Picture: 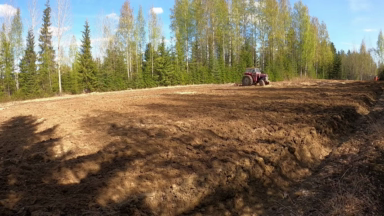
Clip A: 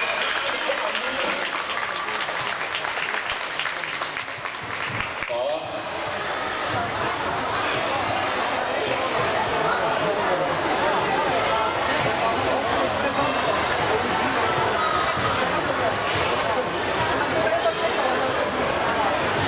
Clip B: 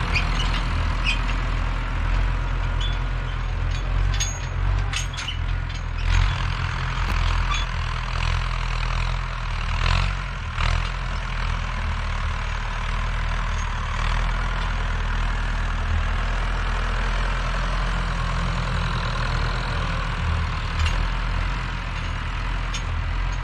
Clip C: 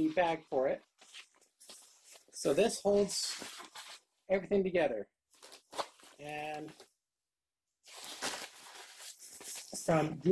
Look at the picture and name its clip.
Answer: B